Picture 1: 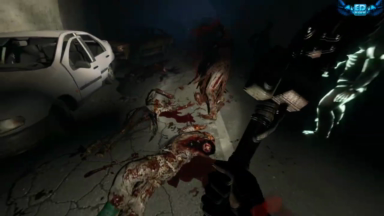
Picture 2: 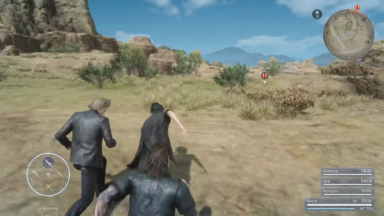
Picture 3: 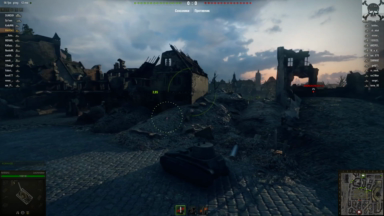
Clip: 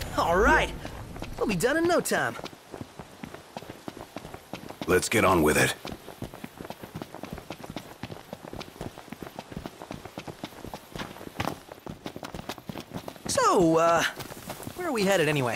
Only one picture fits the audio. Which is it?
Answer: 2